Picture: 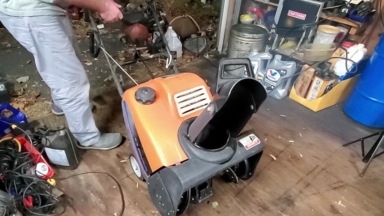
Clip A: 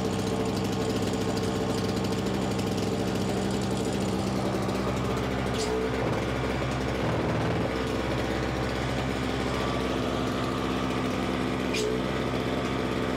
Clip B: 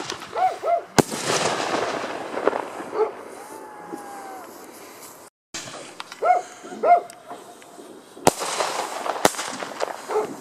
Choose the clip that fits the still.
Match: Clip A